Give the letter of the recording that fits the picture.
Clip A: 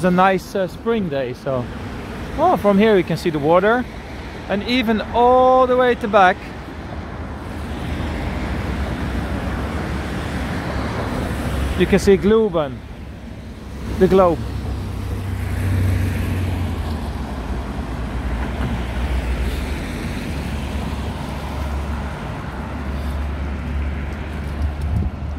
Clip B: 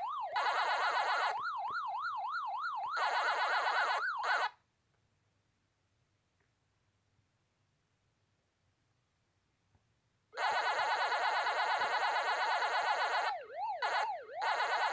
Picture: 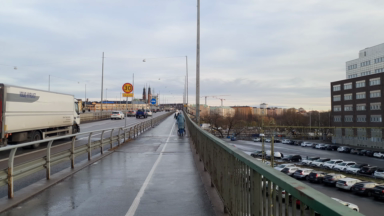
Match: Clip A